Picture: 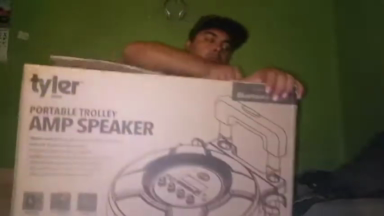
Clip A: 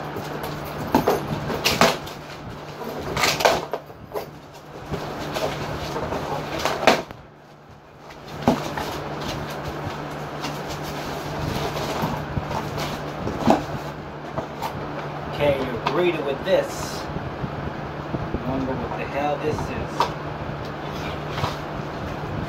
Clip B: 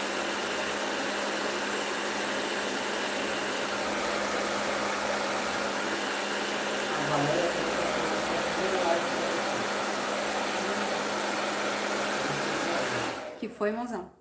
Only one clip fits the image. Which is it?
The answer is A